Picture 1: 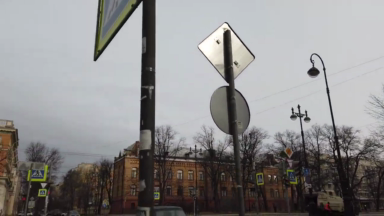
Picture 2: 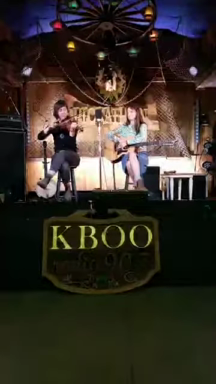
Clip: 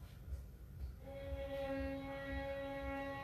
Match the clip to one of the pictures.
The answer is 2